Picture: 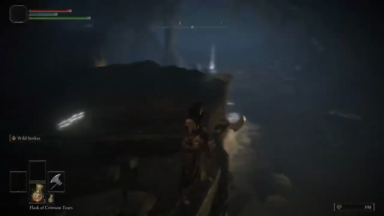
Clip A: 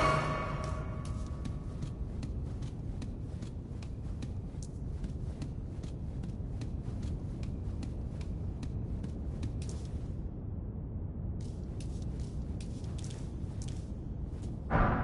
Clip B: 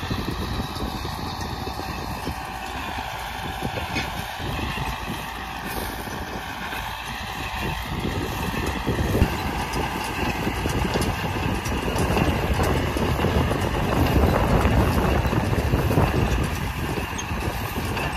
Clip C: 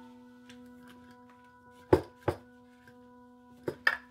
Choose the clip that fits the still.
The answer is A